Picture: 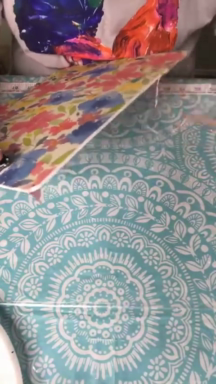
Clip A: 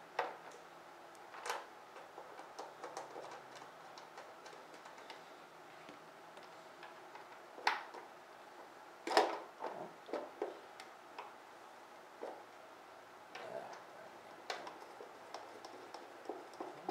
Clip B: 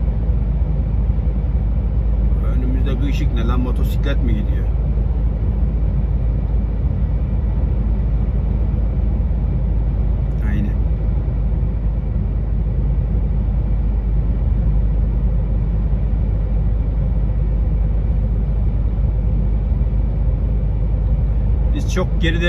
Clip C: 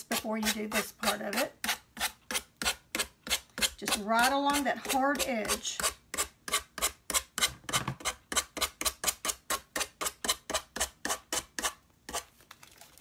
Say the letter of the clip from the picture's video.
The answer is C